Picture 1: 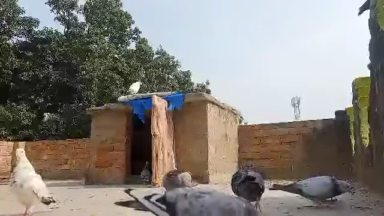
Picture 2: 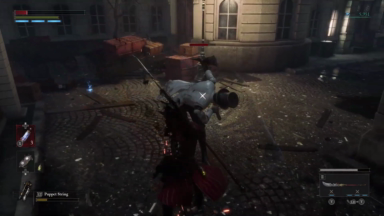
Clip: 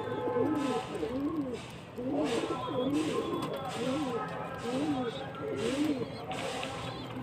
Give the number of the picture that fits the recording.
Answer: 1